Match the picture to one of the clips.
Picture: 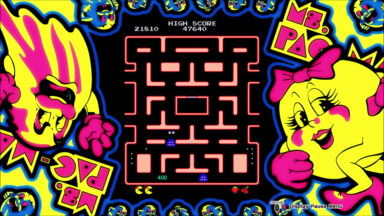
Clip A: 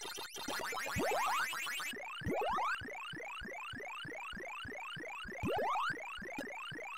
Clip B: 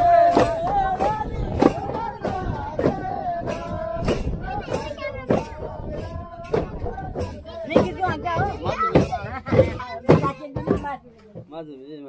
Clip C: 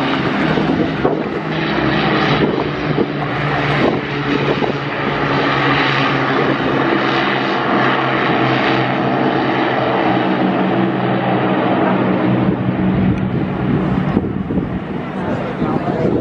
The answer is A